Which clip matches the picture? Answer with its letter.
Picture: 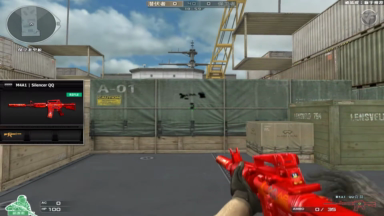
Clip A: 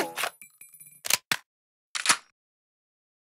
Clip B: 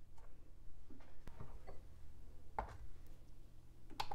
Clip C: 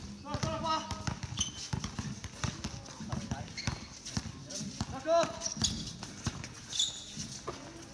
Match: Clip A